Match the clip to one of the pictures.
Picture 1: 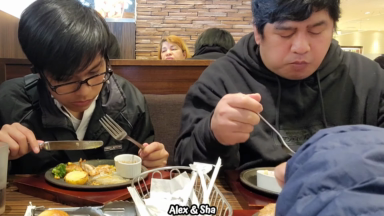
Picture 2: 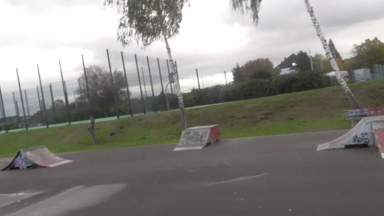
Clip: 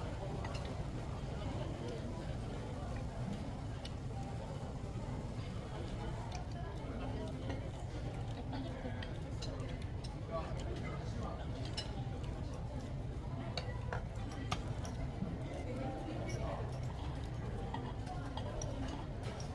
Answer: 1